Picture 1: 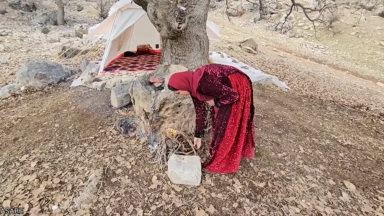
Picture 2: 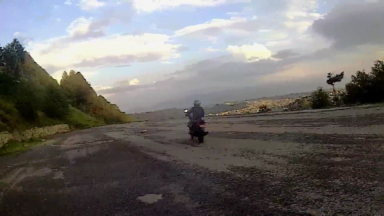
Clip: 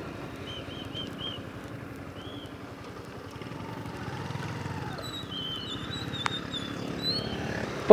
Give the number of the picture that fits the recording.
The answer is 2